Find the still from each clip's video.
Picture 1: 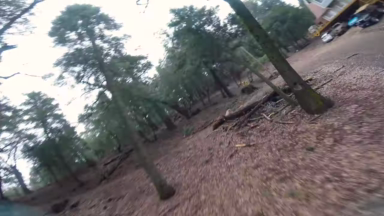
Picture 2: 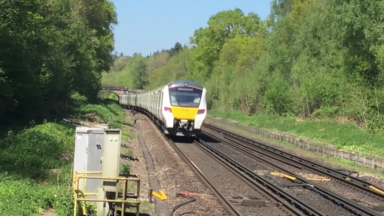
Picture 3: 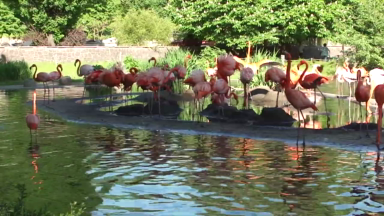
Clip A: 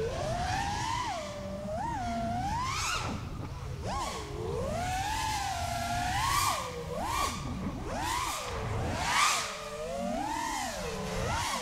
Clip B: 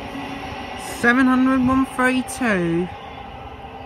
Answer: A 1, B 2